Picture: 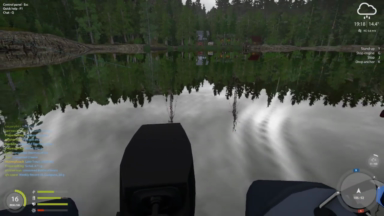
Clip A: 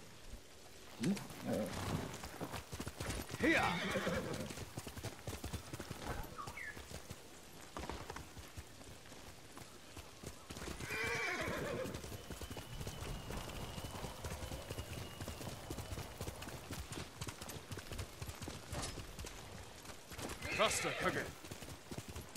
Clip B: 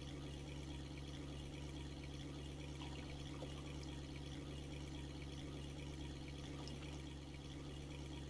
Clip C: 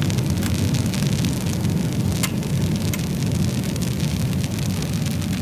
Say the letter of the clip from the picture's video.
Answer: B